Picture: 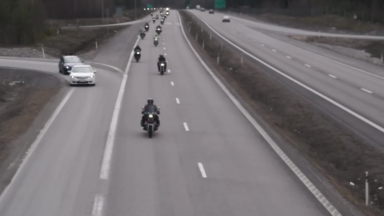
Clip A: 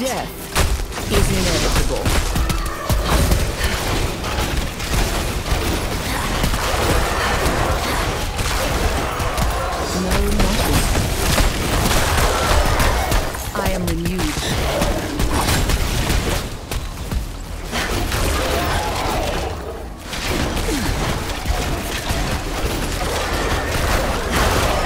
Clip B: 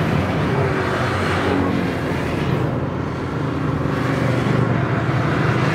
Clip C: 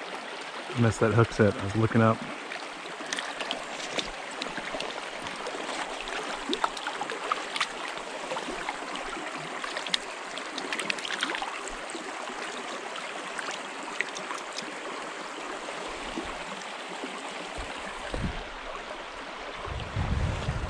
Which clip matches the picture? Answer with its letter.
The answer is B